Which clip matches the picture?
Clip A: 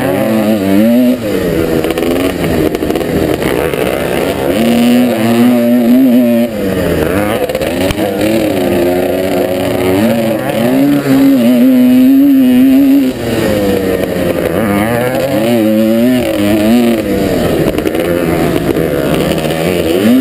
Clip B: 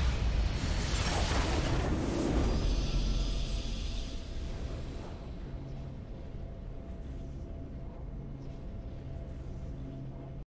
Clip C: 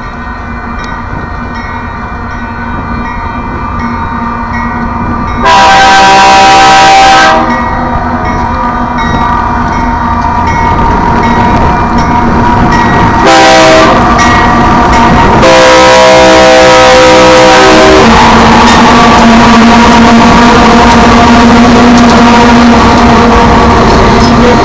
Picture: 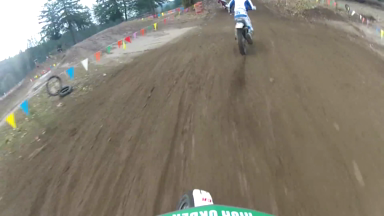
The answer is A